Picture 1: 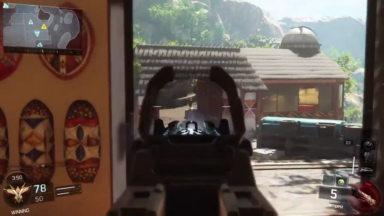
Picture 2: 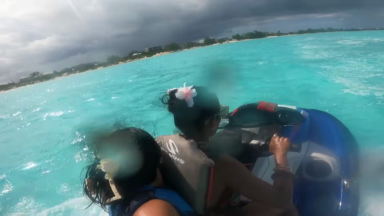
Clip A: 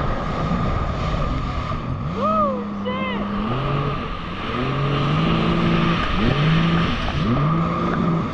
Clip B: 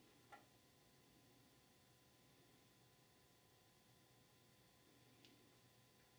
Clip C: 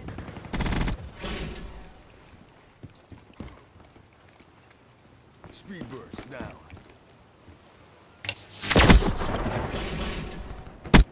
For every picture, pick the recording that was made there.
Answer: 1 C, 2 A